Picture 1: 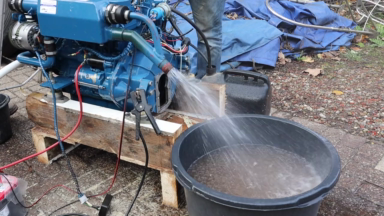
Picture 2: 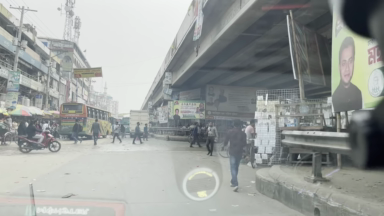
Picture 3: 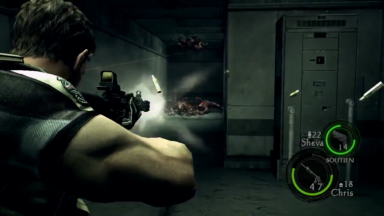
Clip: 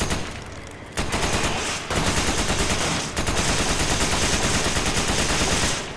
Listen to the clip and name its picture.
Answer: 3